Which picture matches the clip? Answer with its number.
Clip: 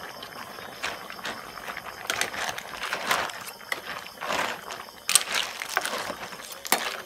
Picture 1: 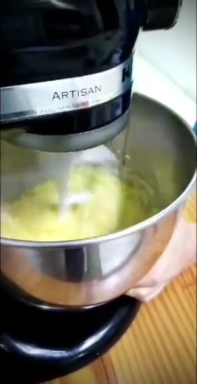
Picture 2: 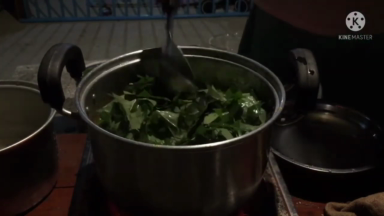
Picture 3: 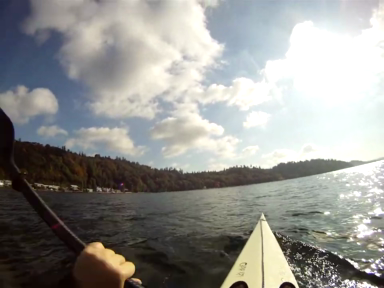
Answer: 2